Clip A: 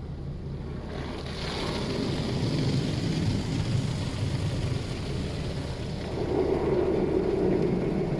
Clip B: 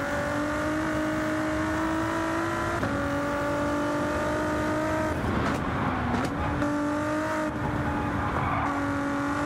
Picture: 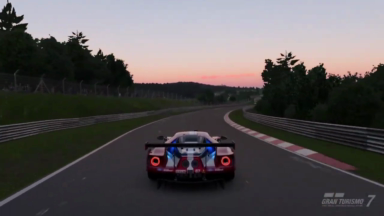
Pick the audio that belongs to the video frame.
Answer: B